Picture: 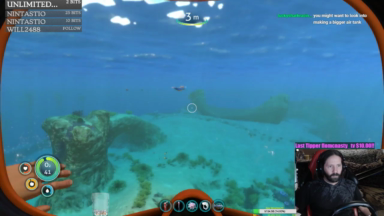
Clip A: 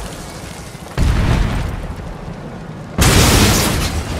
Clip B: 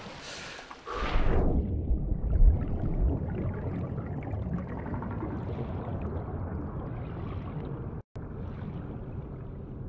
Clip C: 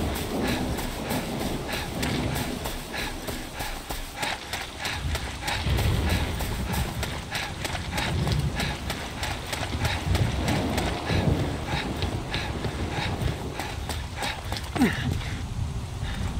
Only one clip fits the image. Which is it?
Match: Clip B